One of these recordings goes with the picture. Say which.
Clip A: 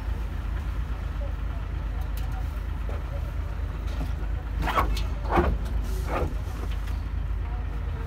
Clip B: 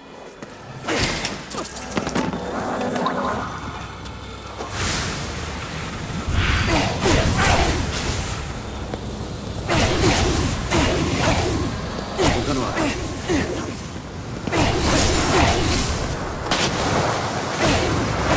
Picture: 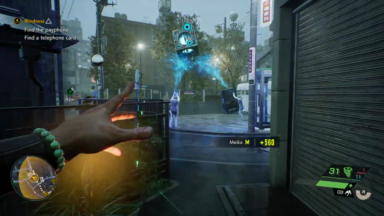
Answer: B